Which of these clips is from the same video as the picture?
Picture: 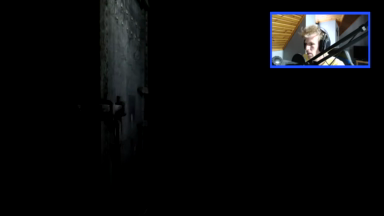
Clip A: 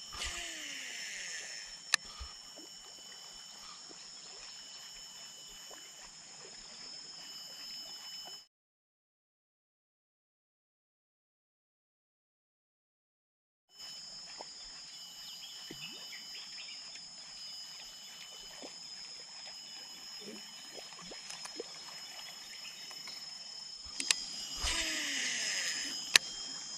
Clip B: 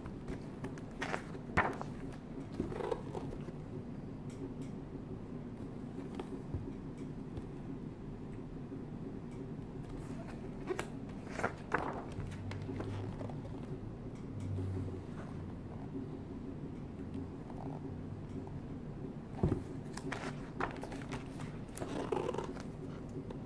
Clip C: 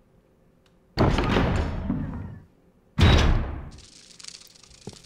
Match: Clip C